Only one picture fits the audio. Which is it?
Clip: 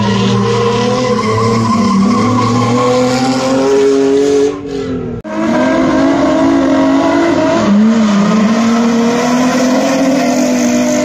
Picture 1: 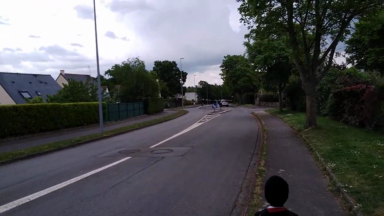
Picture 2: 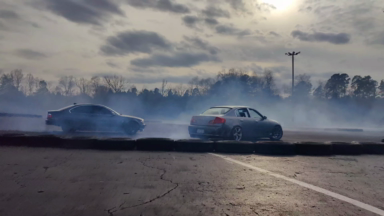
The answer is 2